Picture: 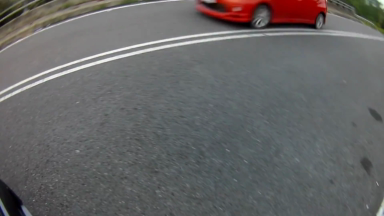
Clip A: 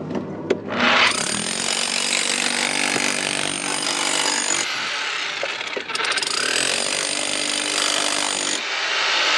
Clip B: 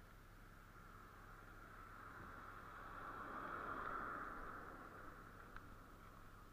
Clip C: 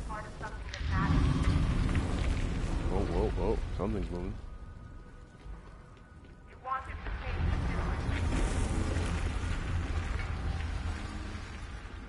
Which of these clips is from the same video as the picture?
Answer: B